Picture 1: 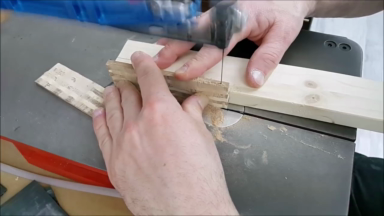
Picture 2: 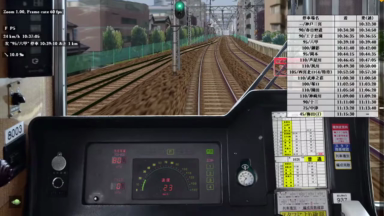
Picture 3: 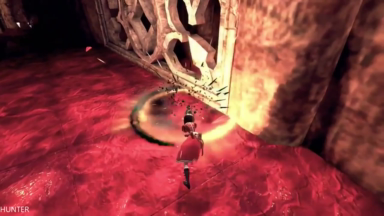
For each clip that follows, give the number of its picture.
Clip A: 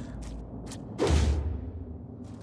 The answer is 3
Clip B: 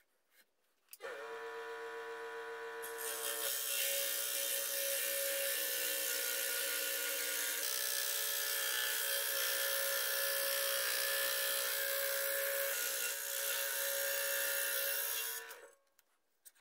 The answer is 1